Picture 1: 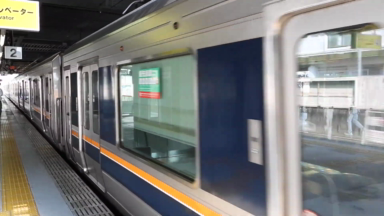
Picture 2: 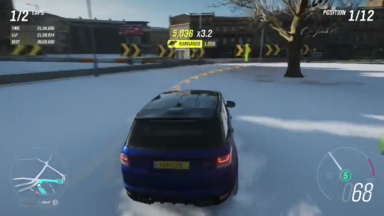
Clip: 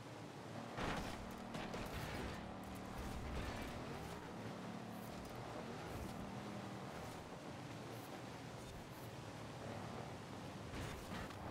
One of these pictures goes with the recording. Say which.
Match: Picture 2